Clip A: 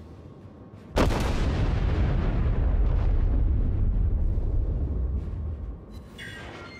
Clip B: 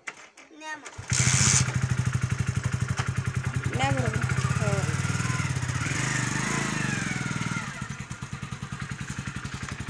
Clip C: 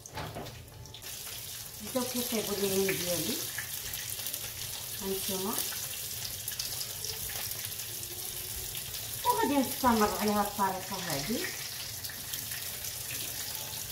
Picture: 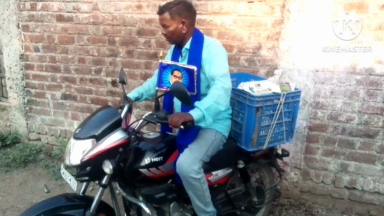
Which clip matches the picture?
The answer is B